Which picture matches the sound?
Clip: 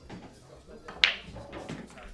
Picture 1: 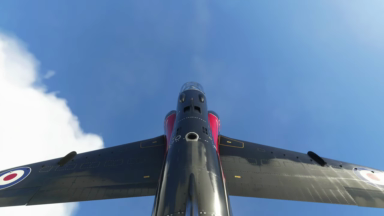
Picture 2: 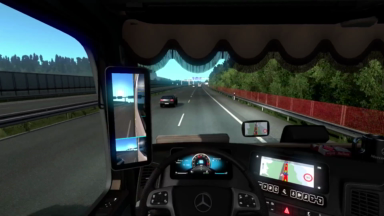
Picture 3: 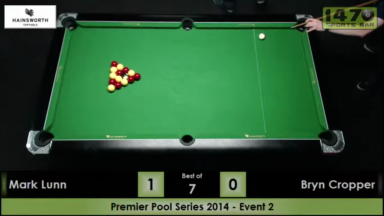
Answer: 3